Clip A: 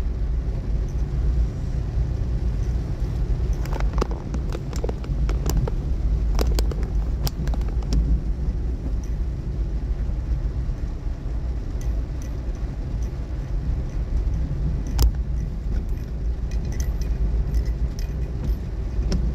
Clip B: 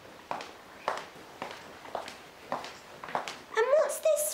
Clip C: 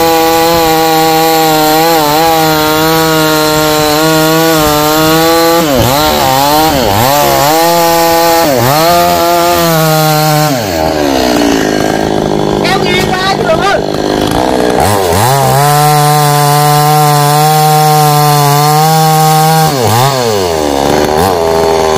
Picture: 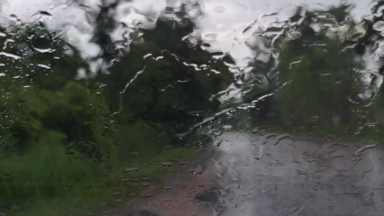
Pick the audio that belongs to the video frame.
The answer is A